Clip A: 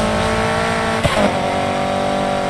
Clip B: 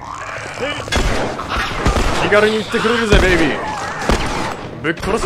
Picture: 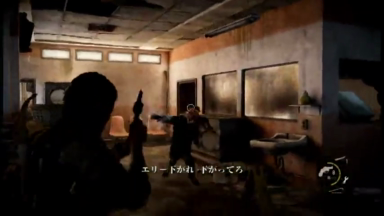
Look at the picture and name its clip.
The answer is B